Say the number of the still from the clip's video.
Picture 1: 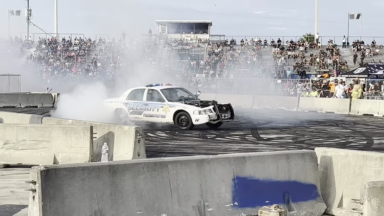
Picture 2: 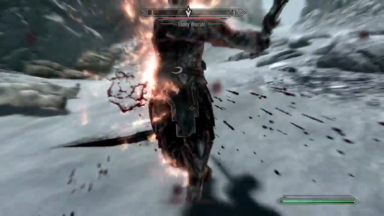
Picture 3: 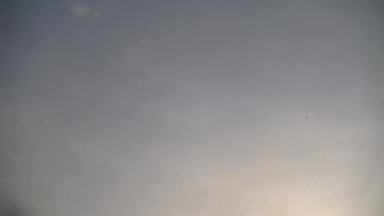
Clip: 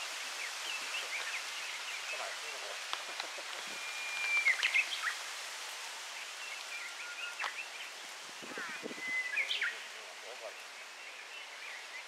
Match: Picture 3